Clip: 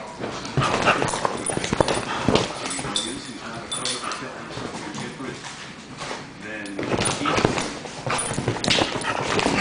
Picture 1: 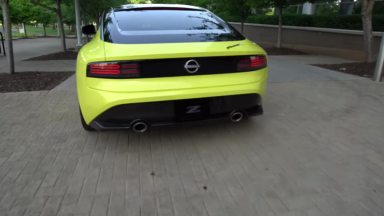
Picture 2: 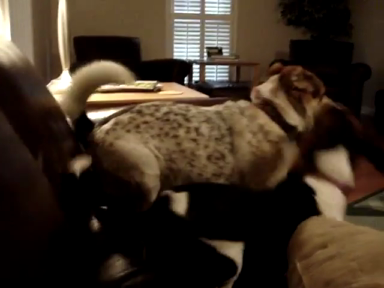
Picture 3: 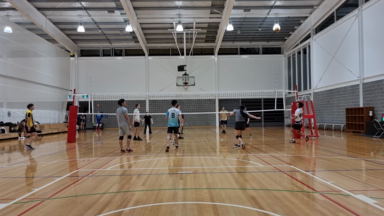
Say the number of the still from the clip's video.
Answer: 2